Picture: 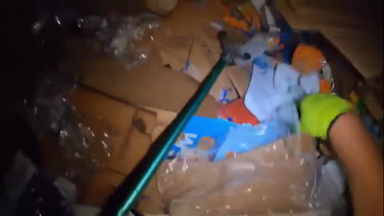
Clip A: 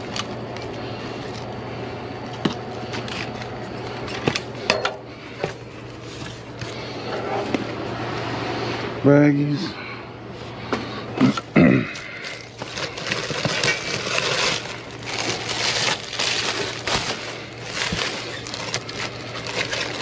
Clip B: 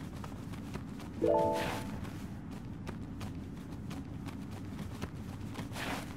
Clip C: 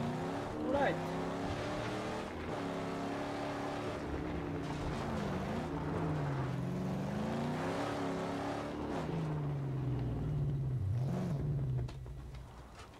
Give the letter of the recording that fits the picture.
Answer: A